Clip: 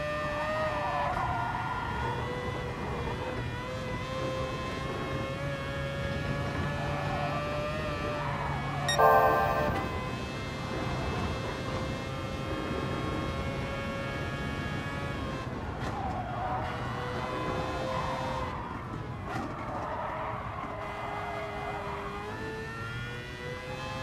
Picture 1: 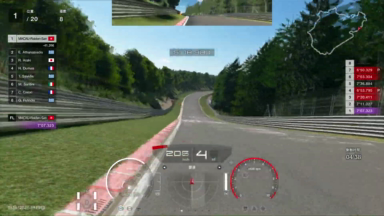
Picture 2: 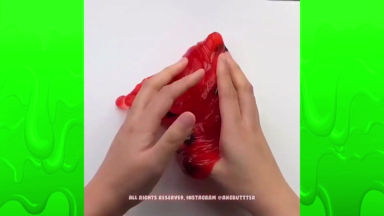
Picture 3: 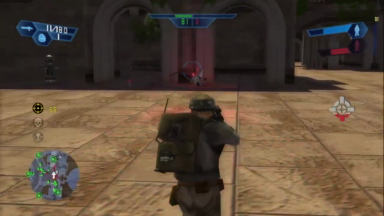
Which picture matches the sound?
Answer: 1